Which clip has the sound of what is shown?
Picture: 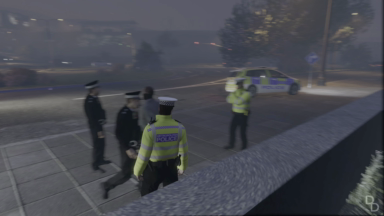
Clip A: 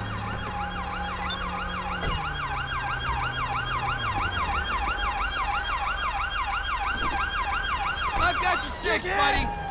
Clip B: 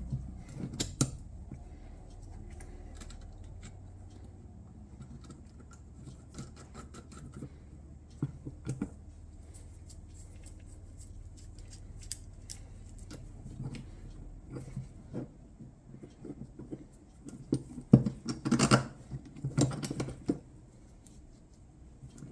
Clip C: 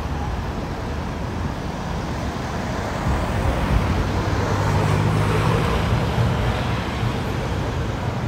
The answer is A